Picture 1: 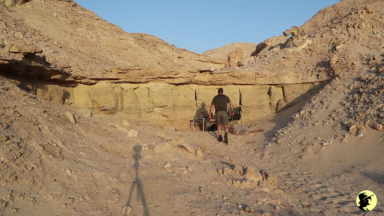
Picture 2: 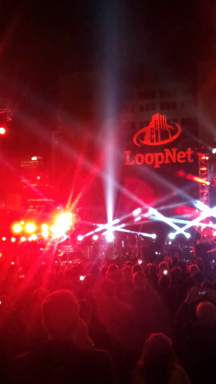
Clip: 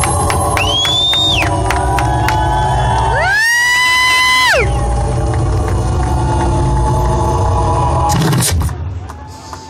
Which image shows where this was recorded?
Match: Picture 2